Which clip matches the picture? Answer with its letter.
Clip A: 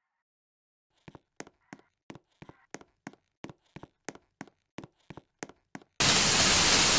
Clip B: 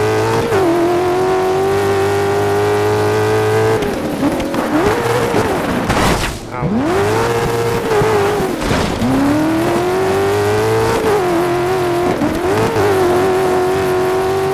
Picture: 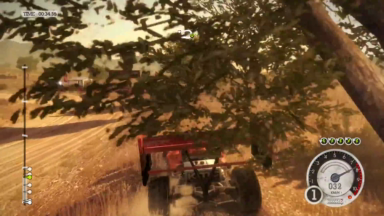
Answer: B